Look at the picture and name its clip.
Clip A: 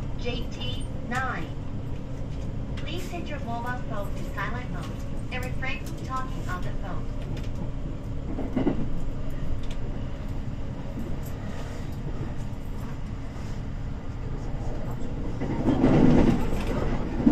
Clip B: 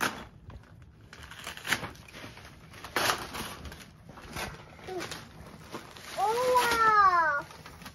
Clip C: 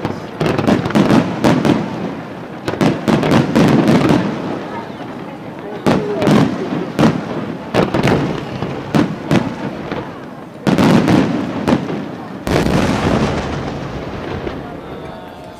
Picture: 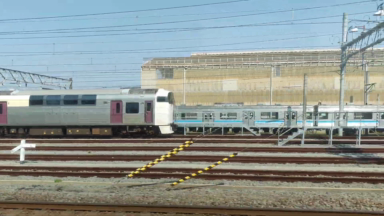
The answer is A